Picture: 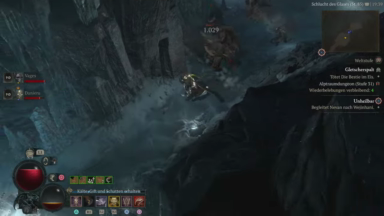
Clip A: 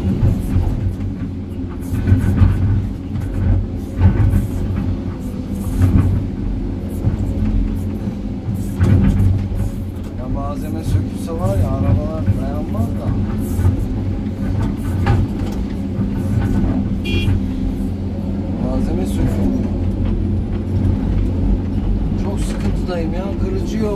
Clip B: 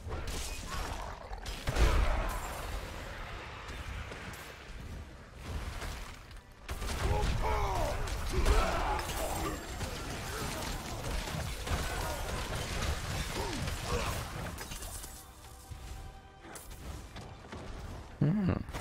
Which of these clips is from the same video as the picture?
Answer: B